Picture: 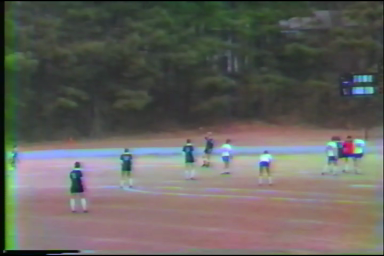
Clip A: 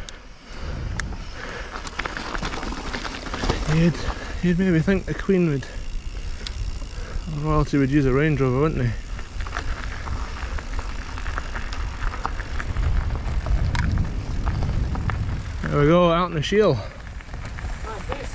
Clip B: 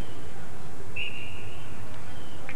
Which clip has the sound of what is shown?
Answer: B